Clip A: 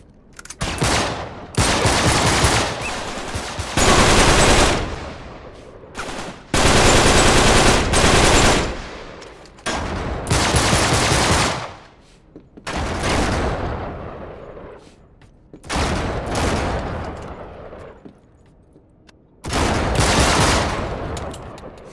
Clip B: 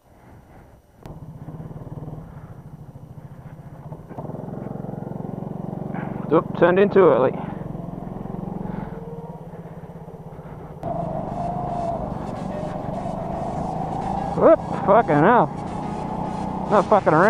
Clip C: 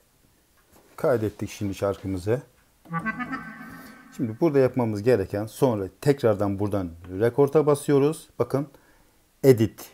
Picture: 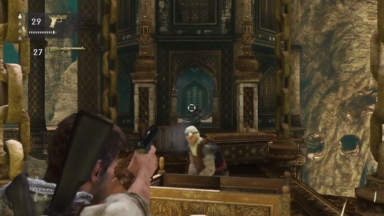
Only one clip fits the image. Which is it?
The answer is A